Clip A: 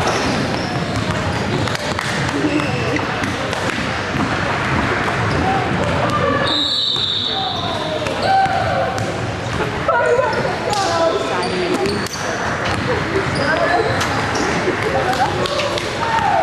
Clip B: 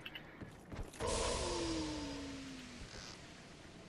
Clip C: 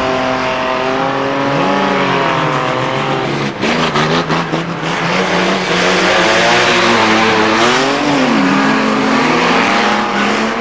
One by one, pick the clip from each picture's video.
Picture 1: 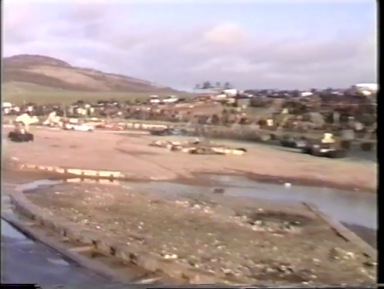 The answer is C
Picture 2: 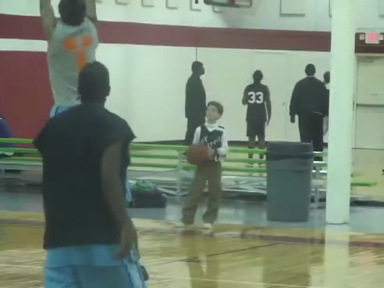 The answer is A